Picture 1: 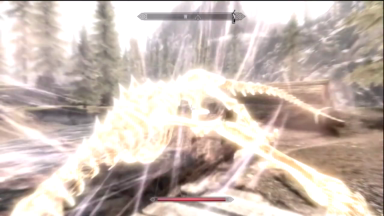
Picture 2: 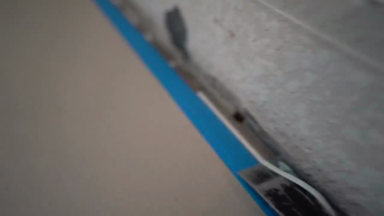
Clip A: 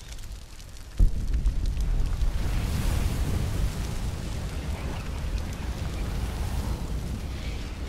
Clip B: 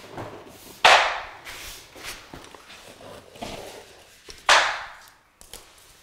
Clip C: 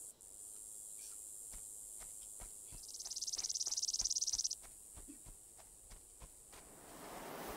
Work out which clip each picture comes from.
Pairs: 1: A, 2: B